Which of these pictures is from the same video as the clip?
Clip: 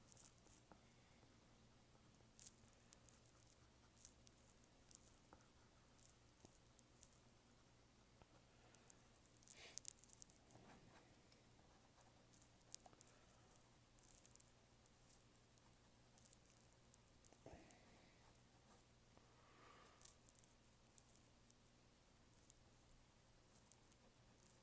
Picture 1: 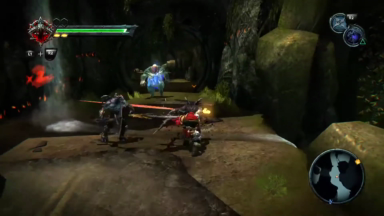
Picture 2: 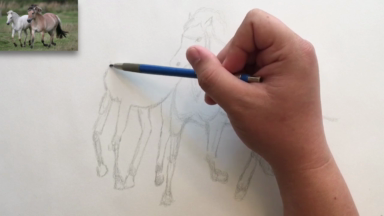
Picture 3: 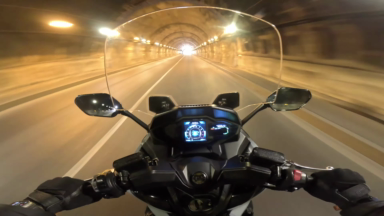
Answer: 2